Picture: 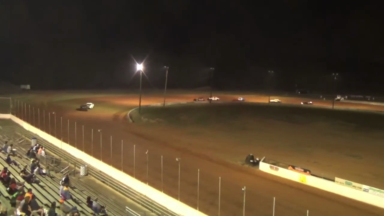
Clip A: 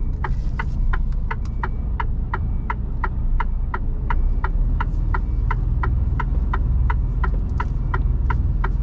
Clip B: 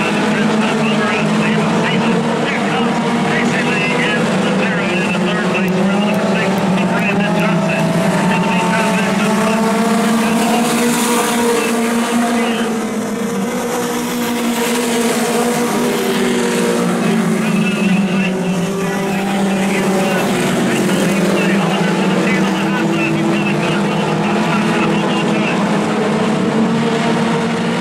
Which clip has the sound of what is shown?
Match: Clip B